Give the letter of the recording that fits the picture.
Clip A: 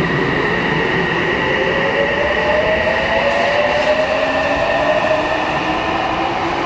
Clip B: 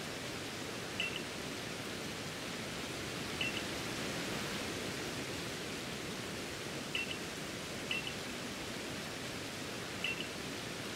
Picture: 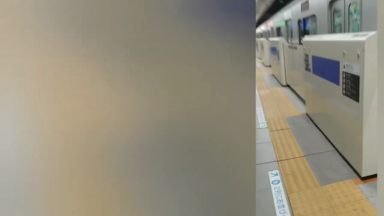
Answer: A